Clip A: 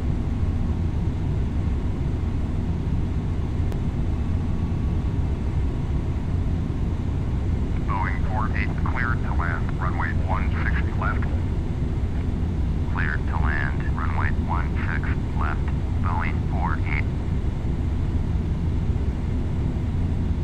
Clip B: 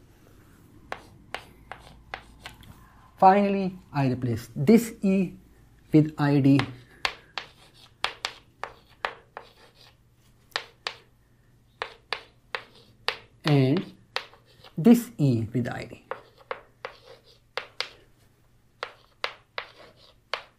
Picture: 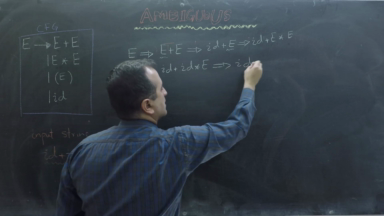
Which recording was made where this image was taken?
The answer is B